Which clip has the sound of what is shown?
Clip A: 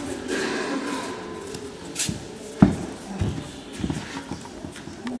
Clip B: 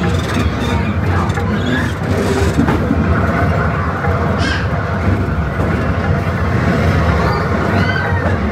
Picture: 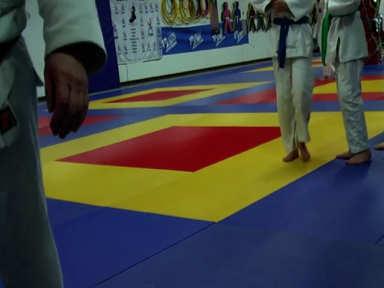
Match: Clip A